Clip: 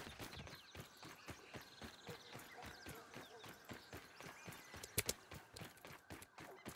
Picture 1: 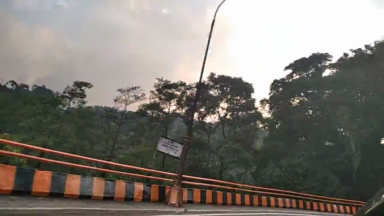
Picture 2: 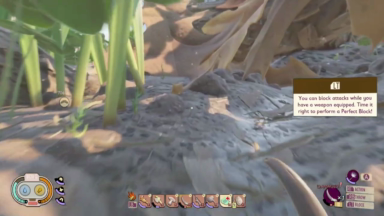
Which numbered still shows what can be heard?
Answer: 2